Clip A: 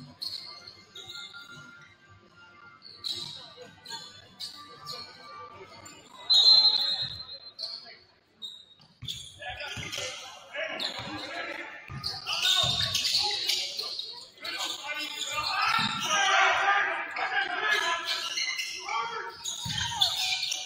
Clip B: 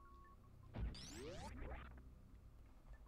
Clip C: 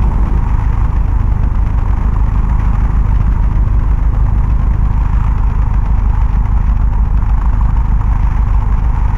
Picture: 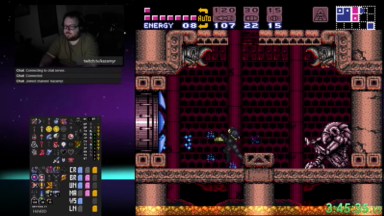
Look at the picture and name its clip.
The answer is B